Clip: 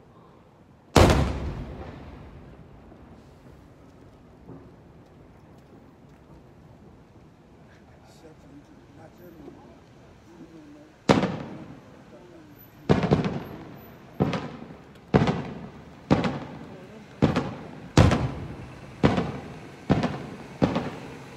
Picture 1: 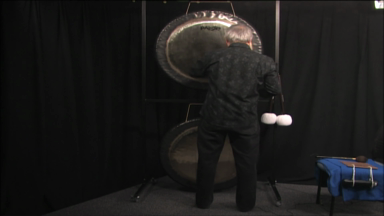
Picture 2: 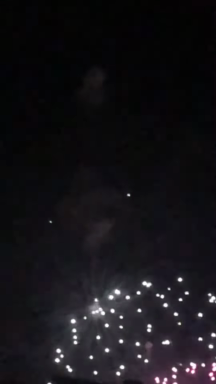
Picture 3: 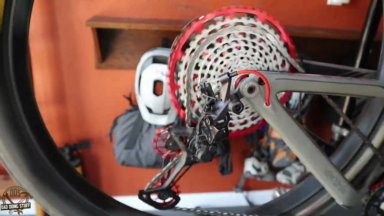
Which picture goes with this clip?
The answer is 2